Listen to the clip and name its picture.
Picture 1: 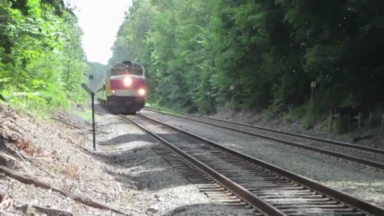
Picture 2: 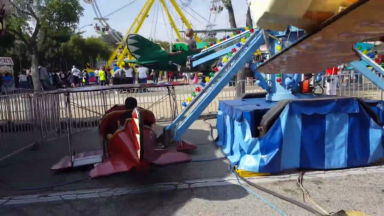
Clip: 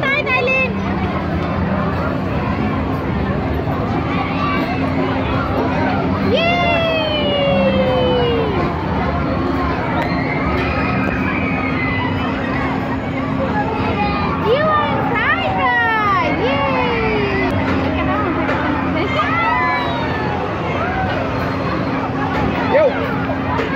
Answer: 2